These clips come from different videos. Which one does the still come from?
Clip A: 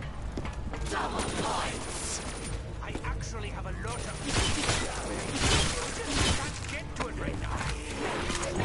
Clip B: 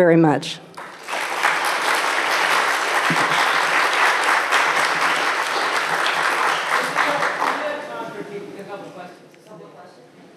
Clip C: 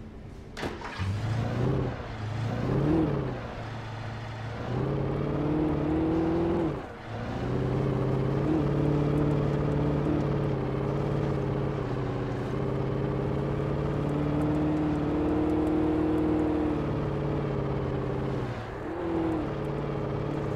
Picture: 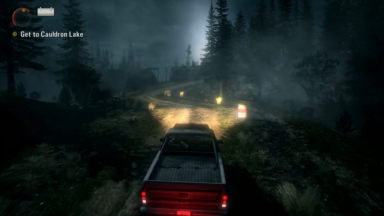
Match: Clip C